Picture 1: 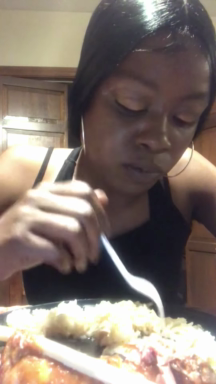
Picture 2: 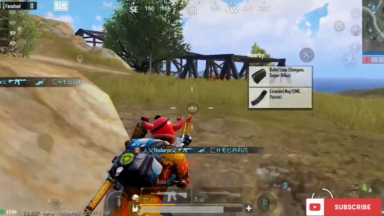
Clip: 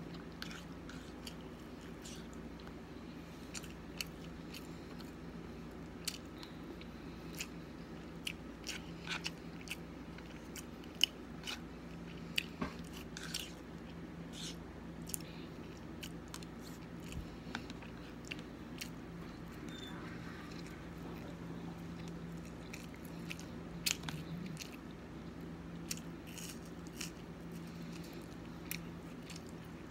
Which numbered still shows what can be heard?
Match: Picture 1